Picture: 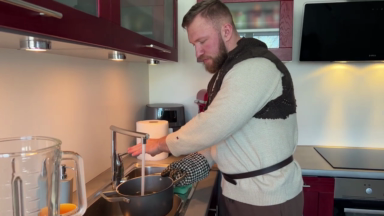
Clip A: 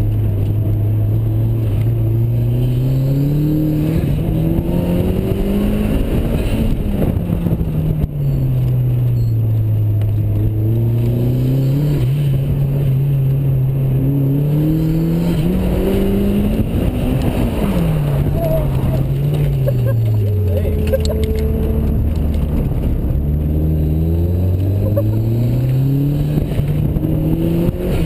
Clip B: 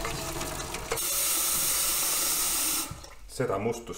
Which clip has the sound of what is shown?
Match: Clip B